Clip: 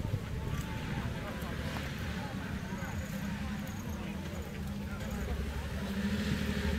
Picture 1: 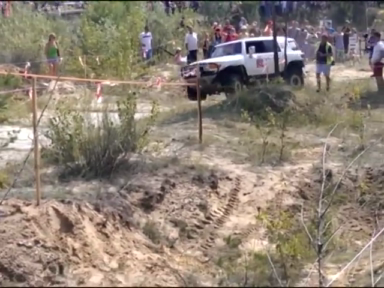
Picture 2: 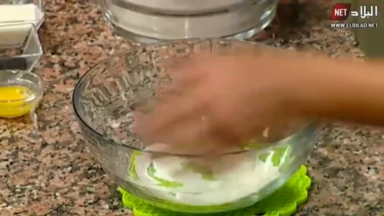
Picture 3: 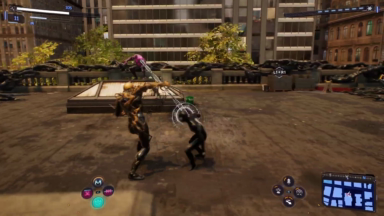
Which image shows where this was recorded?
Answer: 1